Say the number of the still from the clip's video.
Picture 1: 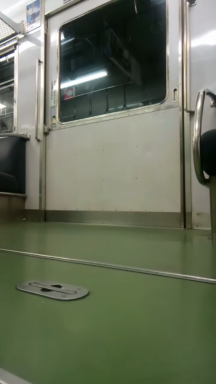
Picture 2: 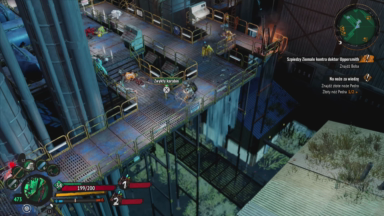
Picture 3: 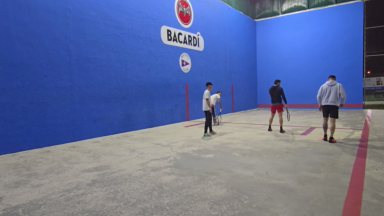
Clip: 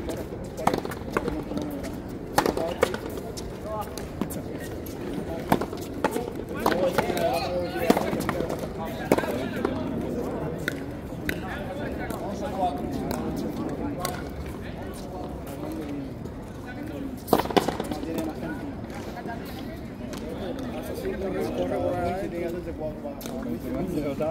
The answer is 3